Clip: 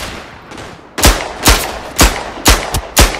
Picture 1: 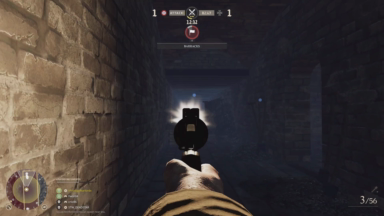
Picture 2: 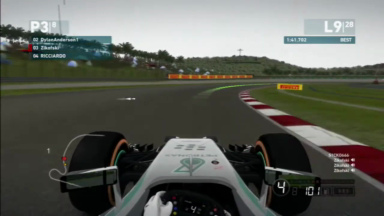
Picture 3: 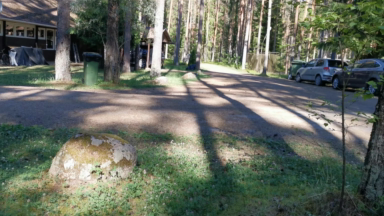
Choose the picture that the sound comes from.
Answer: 1